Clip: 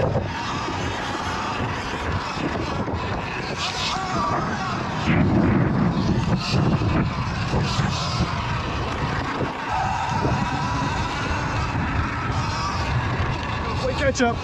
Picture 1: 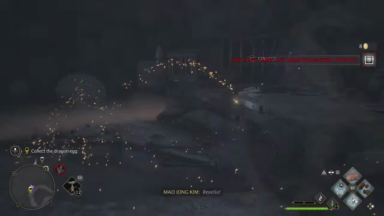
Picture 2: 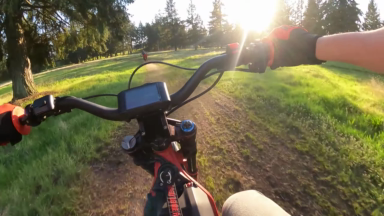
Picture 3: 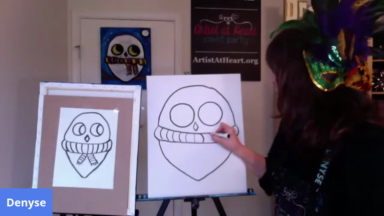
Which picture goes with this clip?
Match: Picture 2